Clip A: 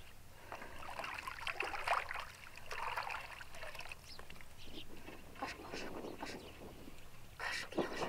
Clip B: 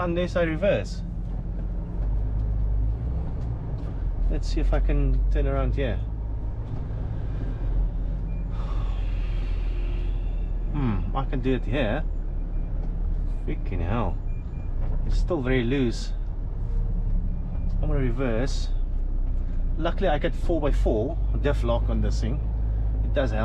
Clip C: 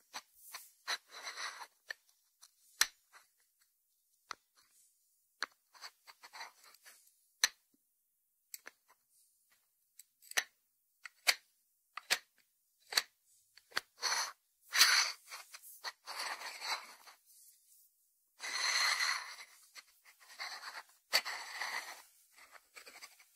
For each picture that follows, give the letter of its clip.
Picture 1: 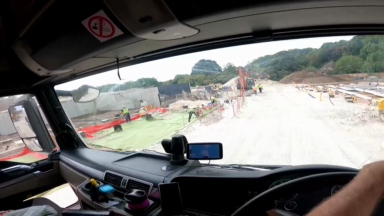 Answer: B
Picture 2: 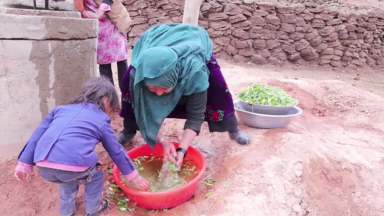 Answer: A